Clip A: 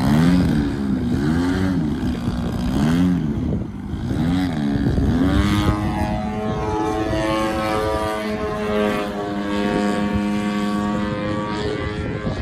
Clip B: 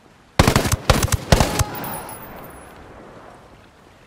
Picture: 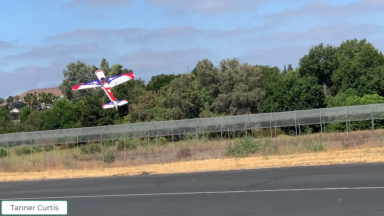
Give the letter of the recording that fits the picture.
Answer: A